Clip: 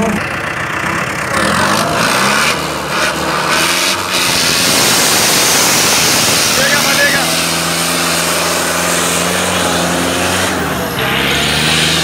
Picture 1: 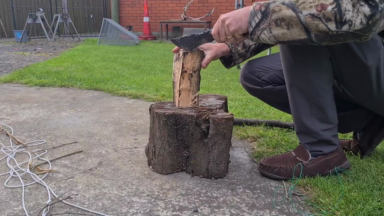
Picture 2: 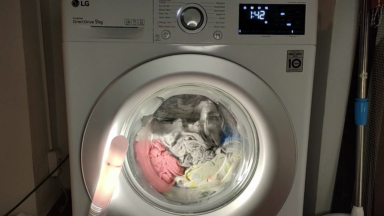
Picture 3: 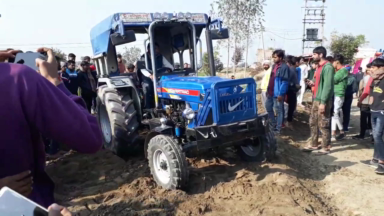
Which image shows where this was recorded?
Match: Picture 3